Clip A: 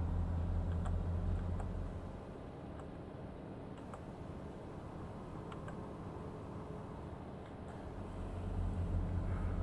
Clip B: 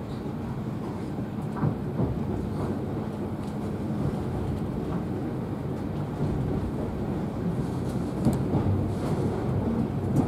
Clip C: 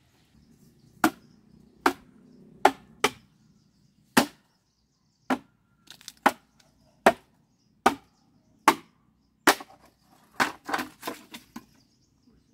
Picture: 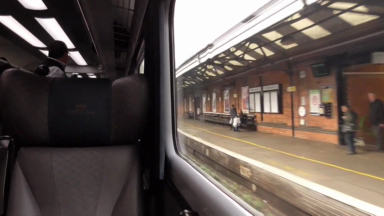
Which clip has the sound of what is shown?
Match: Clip B